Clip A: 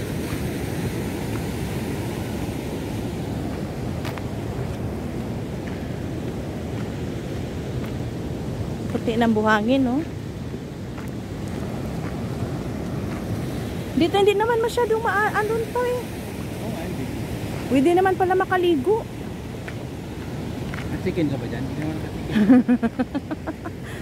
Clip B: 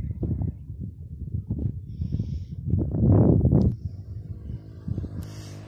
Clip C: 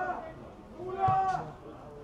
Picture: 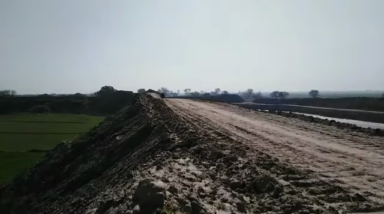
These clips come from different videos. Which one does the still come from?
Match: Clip B